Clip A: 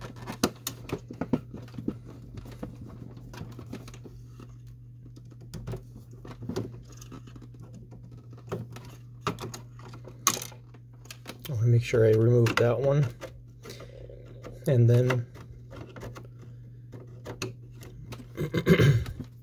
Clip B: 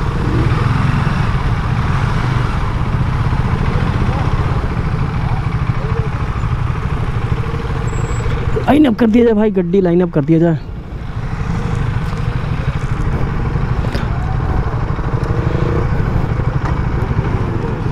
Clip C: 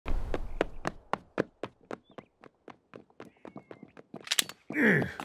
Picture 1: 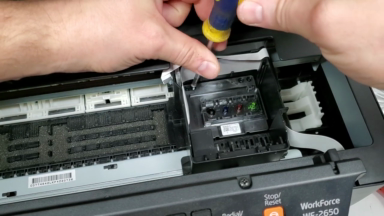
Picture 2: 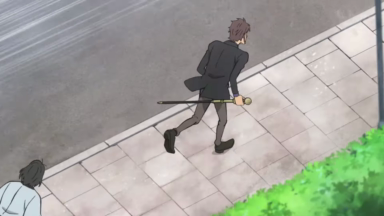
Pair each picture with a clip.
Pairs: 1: A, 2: C